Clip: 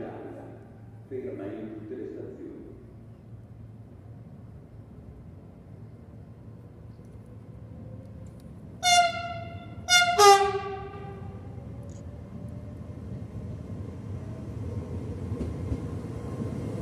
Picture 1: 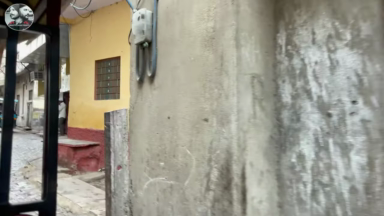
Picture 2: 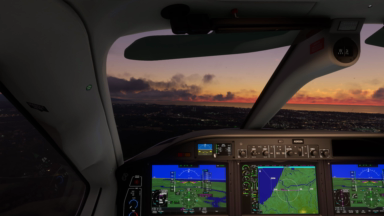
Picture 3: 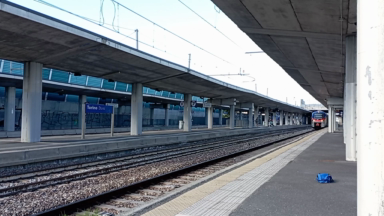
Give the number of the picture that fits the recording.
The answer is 3